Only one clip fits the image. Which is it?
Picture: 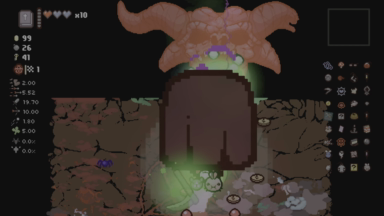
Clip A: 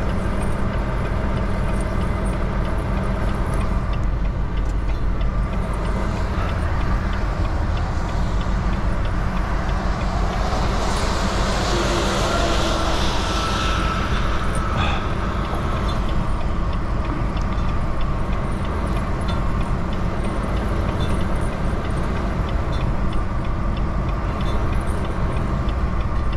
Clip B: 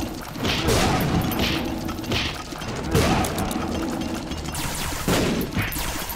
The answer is B